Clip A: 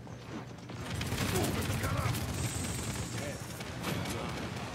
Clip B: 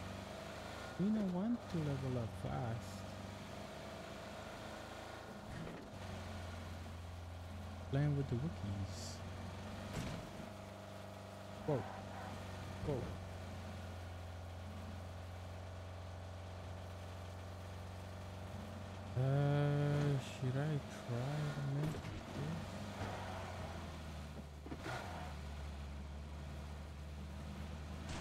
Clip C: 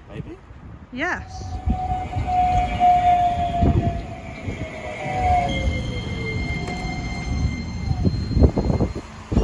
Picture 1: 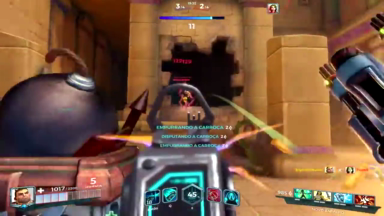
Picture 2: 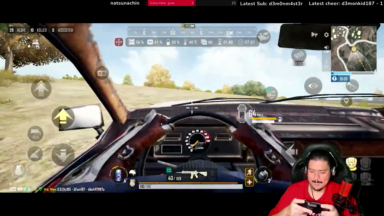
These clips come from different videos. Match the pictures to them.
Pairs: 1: A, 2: B